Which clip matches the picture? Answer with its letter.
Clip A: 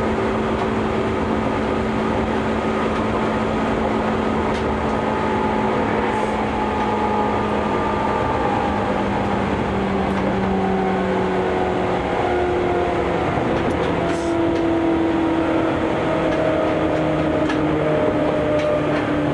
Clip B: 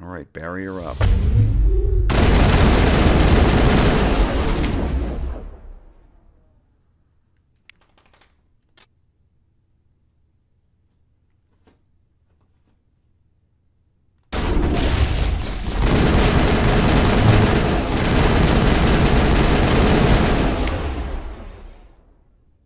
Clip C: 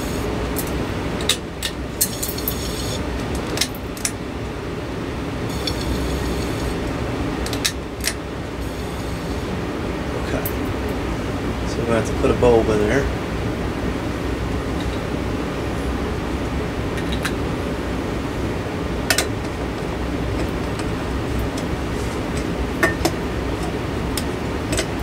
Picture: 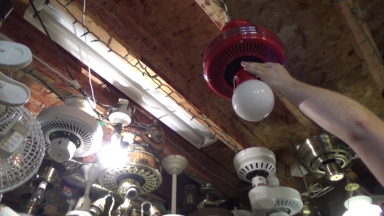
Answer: C